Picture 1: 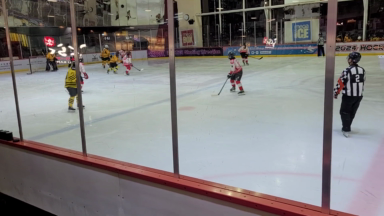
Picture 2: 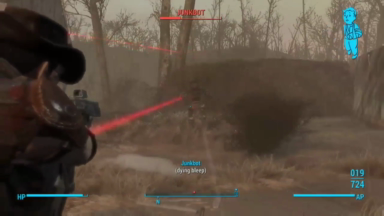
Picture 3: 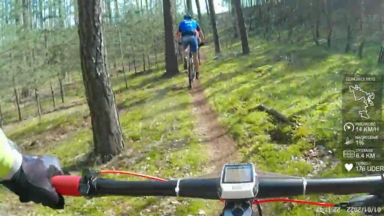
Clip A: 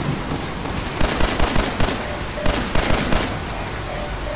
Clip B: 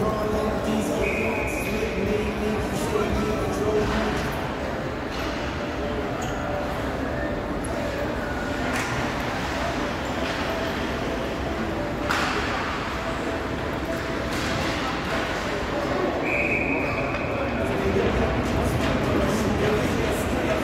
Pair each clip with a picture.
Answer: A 2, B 1